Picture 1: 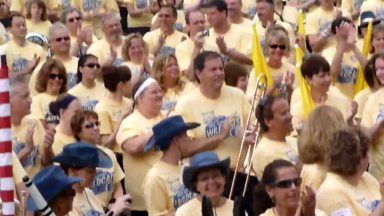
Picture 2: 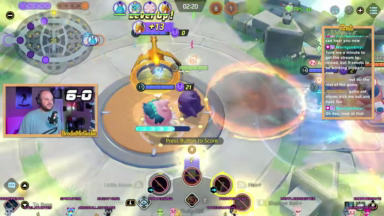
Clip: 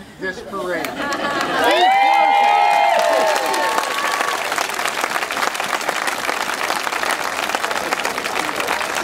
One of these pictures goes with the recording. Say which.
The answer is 1